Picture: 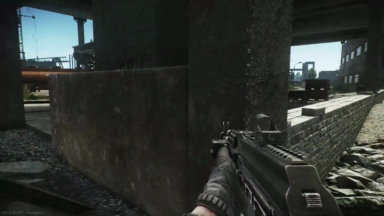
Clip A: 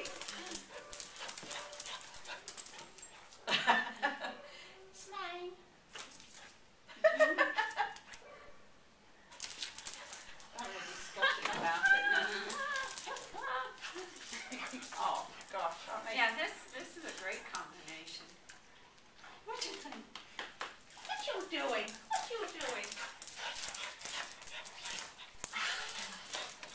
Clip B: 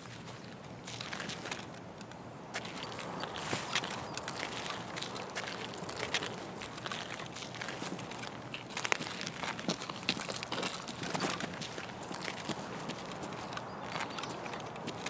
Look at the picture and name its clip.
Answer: B